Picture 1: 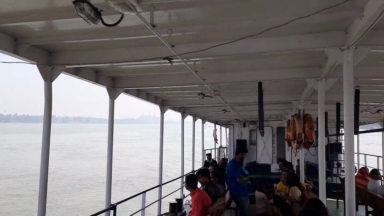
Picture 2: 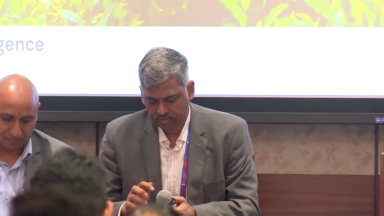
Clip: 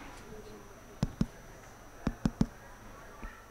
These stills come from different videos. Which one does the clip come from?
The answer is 2